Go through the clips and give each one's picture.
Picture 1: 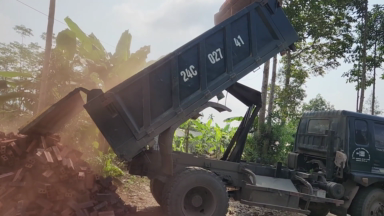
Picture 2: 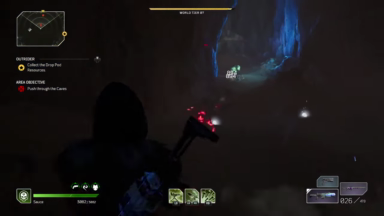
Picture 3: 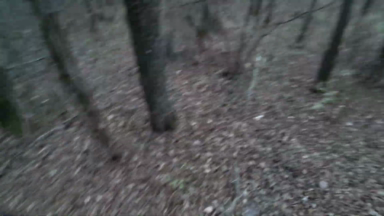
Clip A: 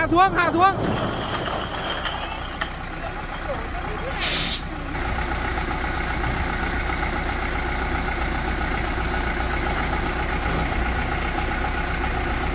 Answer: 1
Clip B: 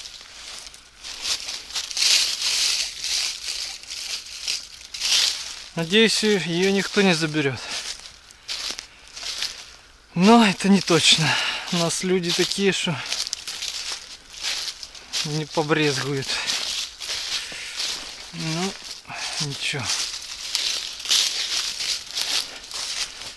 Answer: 3